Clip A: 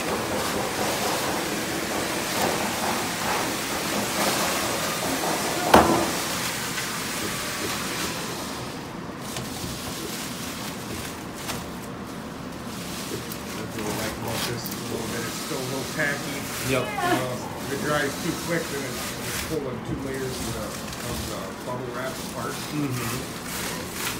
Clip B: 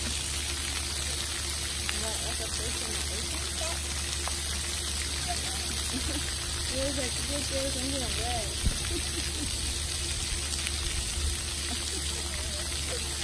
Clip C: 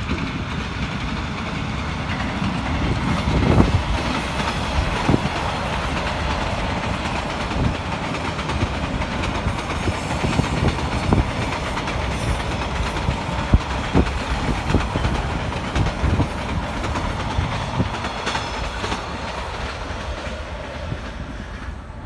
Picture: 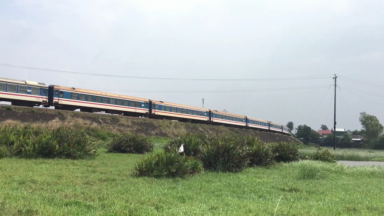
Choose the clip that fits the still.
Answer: C